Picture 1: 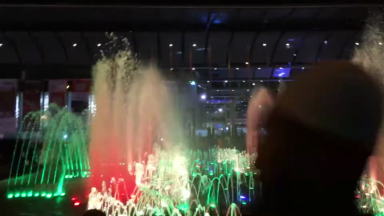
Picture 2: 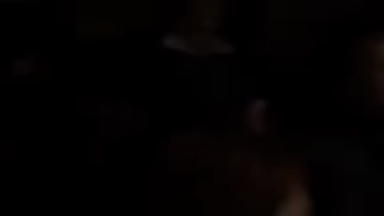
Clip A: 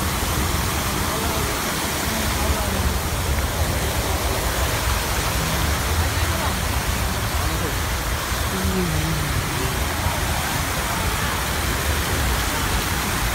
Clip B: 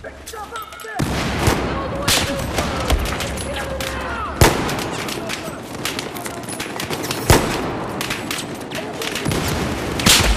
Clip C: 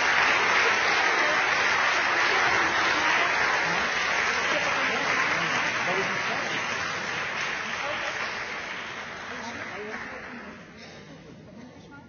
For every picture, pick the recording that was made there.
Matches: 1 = A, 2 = C